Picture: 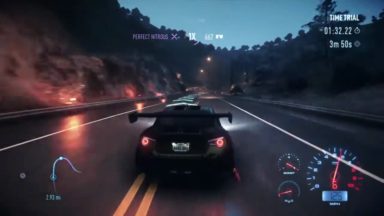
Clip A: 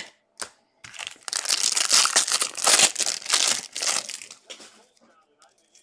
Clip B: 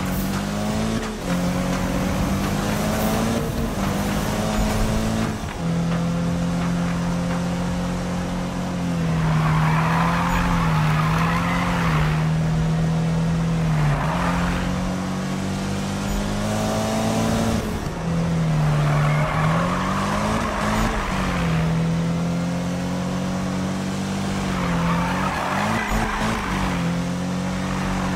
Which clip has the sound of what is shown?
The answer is B